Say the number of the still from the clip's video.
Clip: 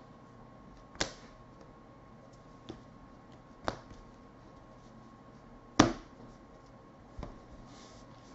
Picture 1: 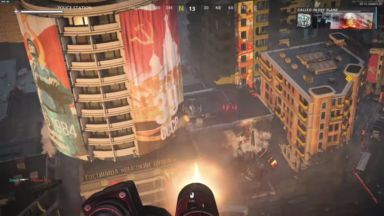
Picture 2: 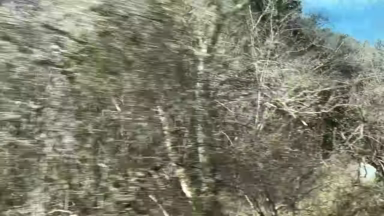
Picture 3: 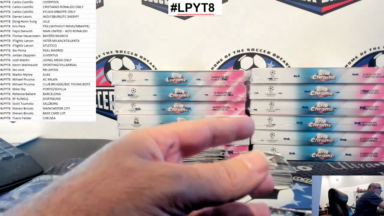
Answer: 3